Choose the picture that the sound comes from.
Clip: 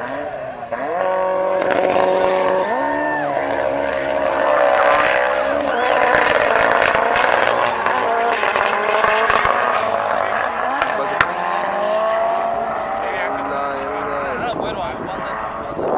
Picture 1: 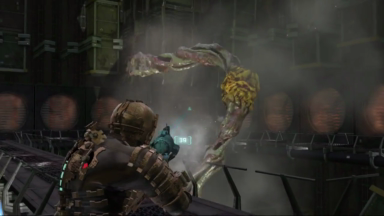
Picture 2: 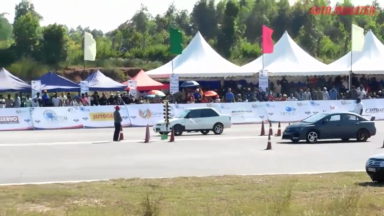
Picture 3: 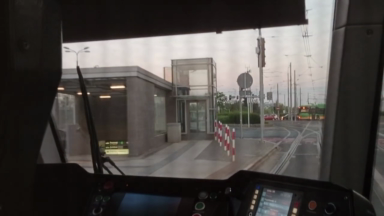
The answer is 2